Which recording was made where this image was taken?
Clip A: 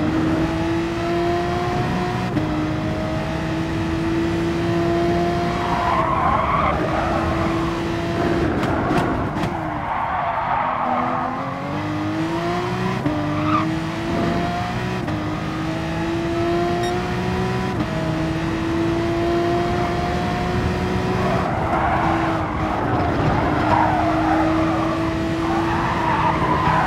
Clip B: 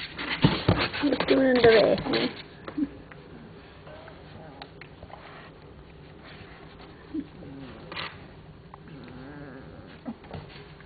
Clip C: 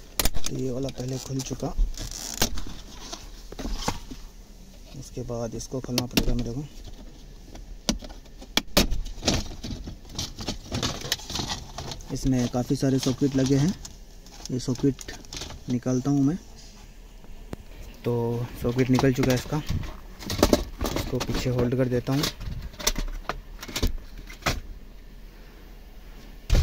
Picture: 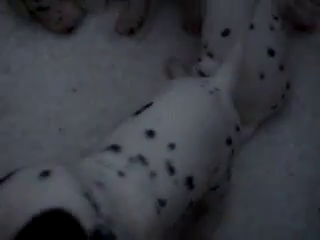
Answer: B